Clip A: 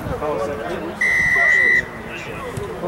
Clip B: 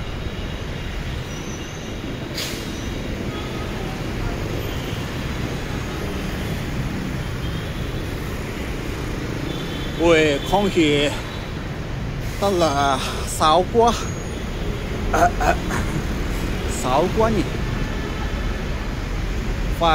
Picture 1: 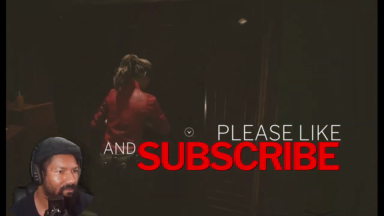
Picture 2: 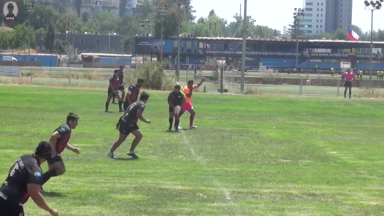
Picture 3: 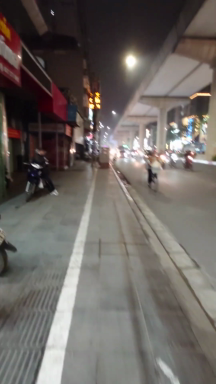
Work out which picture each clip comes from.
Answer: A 2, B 3